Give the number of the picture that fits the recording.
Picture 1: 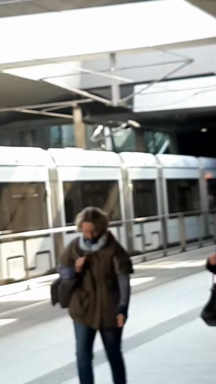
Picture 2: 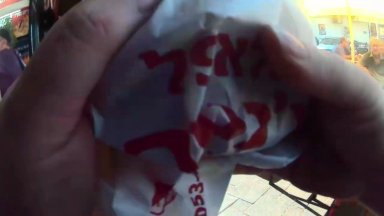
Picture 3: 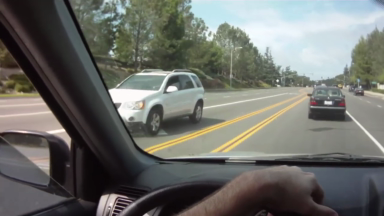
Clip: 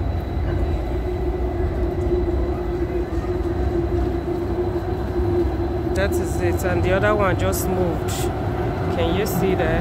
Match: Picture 1